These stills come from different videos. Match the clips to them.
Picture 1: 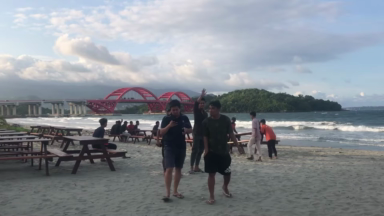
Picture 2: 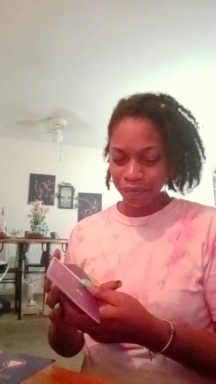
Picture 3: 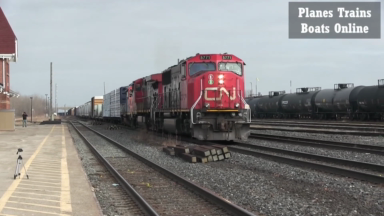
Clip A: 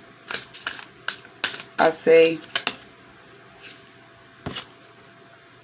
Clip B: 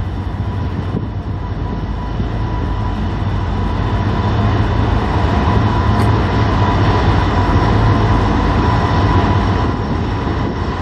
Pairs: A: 2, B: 3